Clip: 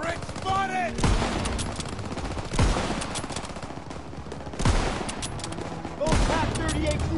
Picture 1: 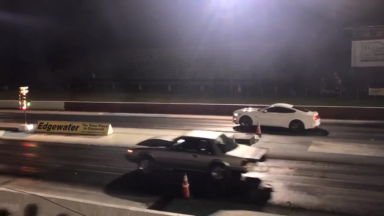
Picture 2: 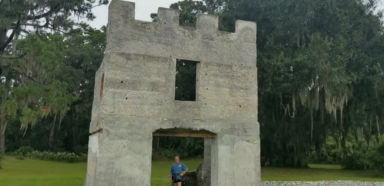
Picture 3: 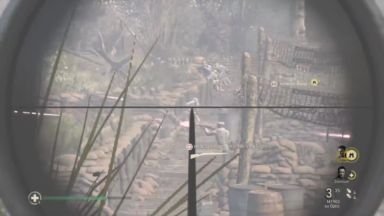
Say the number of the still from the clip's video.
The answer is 3